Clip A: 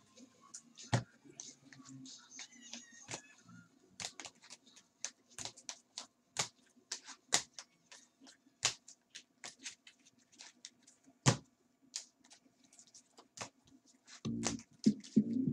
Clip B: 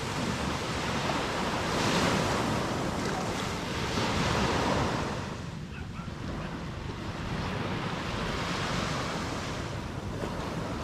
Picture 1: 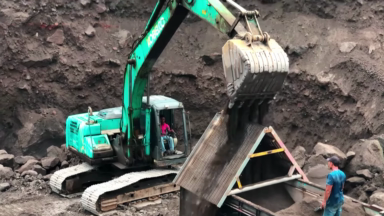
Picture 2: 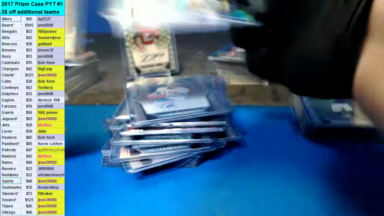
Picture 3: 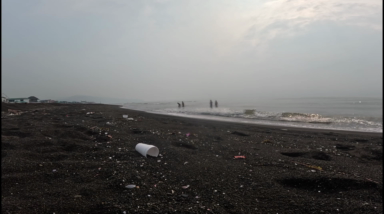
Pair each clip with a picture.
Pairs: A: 2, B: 3